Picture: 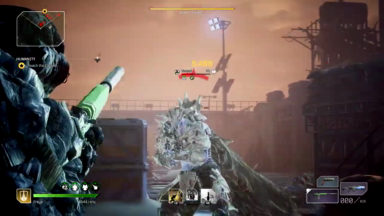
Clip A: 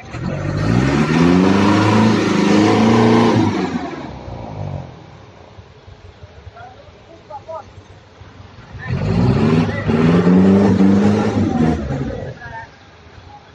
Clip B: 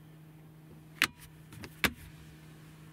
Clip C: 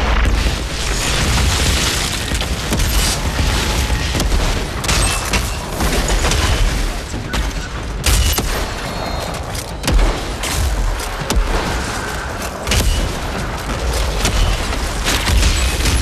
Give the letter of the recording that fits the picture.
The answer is C